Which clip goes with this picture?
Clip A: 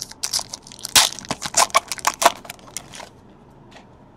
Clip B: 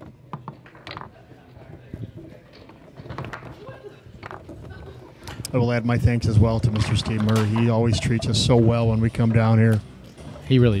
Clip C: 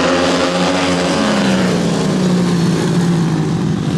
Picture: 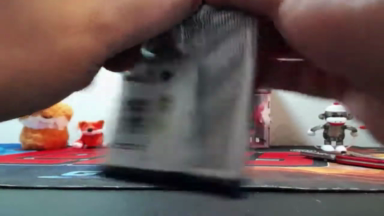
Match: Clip A